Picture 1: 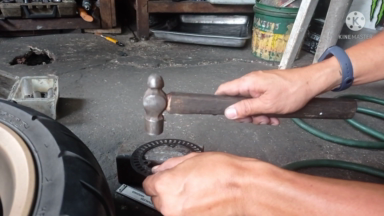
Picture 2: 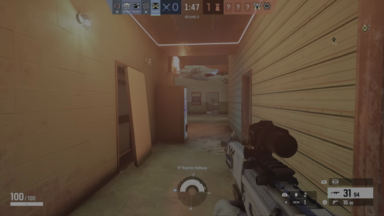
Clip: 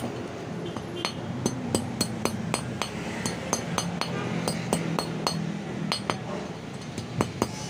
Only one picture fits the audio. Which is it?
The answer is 1